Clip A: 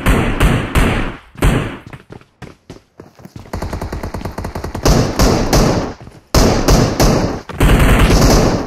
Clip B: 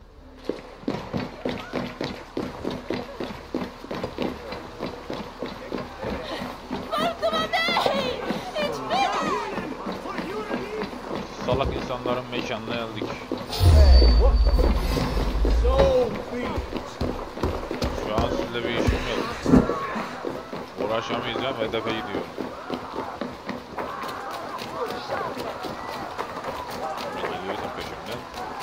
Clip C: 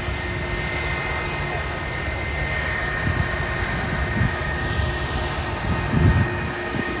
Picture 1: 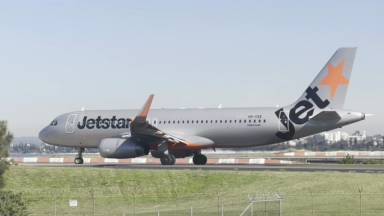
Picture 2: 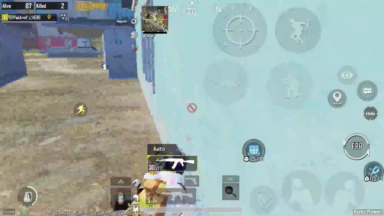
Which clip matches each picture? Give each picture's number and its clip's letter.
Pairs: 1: C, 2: A